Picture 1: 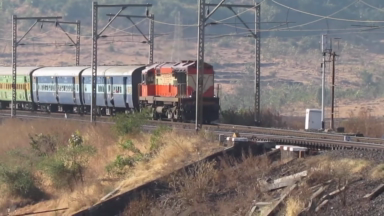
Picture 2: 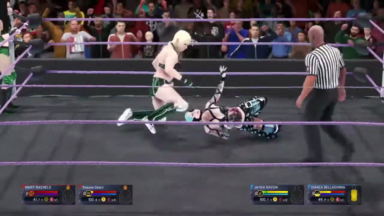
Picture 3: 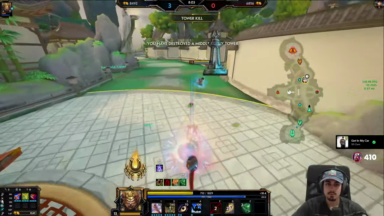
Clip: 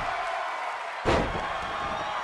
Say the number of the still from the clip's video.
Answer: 2